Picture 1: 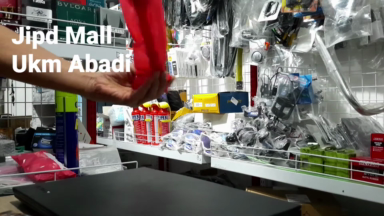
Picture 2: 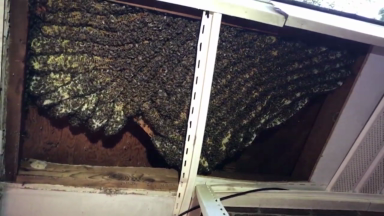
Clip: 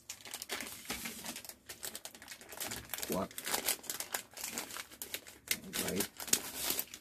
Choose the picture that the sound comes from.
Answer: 1